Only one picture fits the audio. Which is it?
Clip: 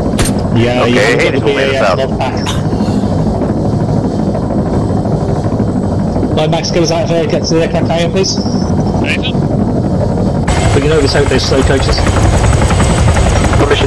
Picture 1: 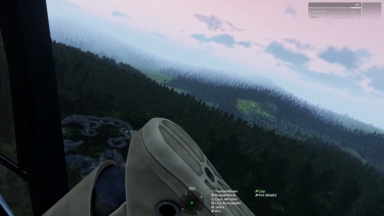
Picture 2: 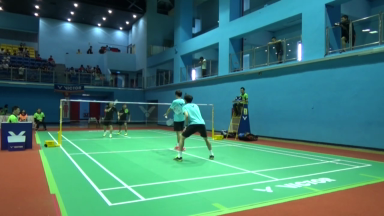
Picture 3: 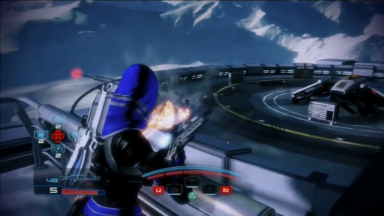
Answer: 1